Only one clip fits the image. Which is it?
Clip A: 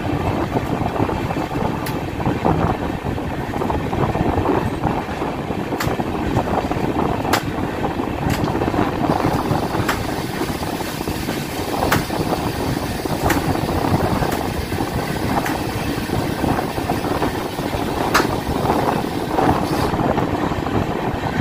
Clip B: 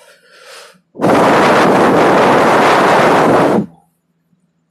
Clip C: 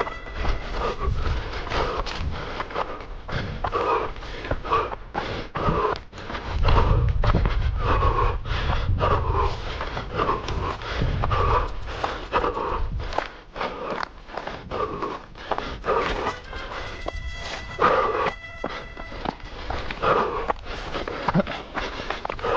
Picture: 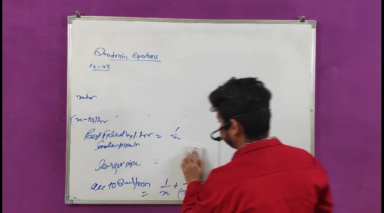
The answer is B